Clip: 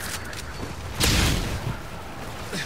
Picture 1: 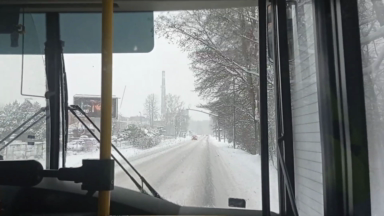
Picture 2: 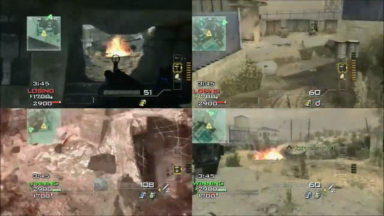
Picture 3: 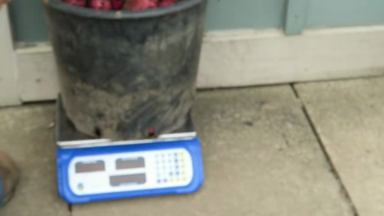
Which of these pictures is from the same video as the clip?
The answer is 2